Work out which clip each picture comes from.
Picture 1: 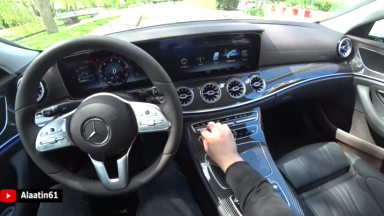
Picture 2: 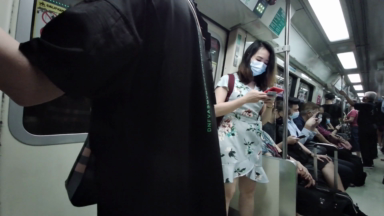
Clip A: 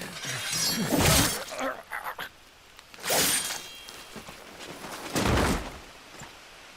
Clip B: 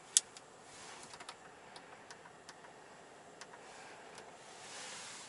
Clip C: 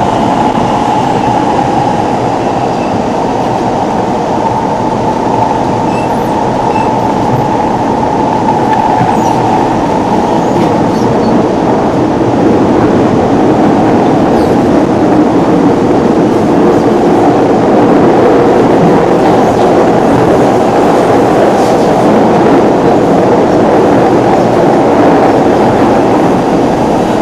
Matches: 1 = B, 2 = C